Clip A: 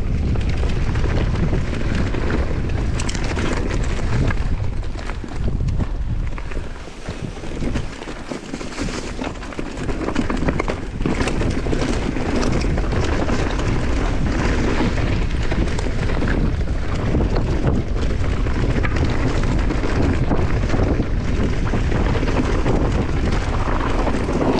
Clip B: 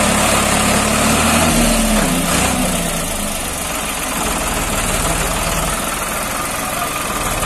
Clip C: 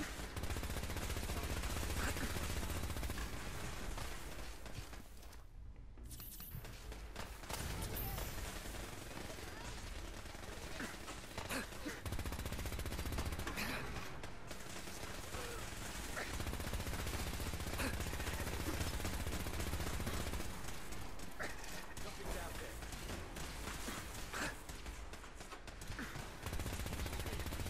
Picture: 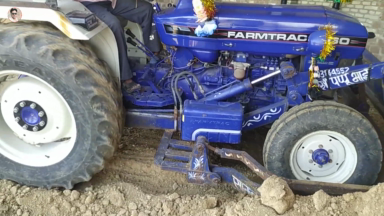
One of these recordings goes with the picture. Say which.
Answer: B